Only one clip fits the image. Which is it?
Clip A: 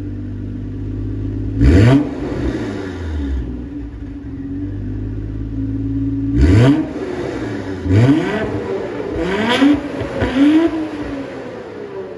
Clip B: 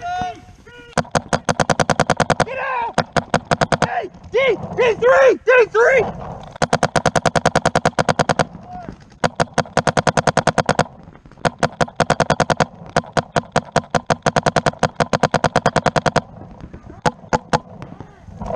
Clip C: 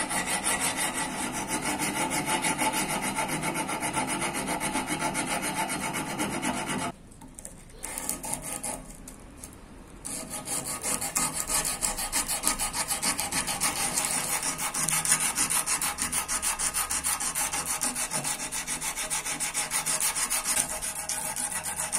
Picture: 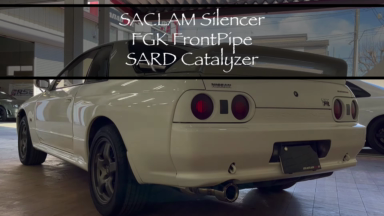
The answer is A